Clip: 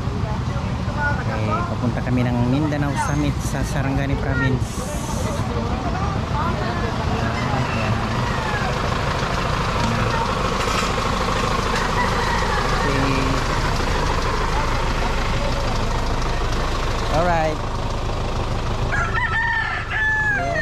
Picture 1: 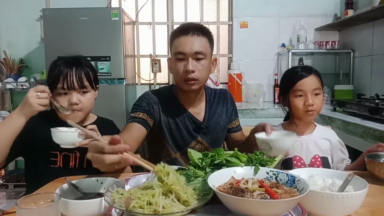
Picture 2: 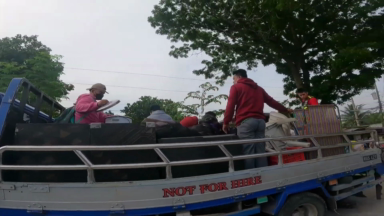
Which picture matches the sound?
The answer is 2